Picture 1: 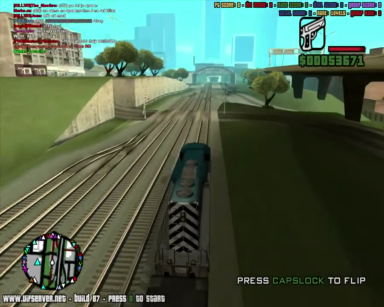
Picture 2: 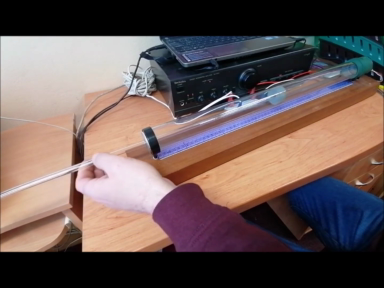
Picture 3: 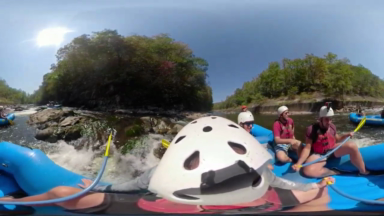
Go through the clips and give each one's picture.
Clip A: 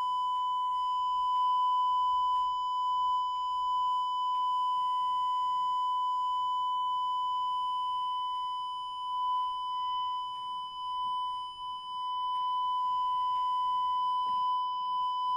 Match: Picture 2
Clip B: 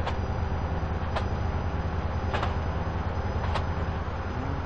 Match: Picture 1